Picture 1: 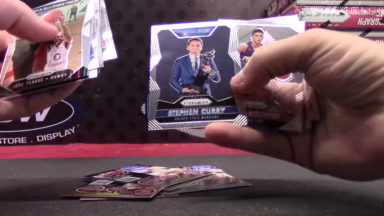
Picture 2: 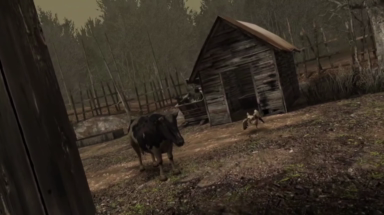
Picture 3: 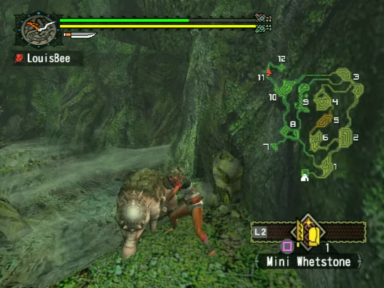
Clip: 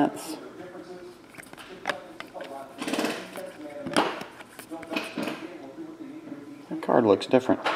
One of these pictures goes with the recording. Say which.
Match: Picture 1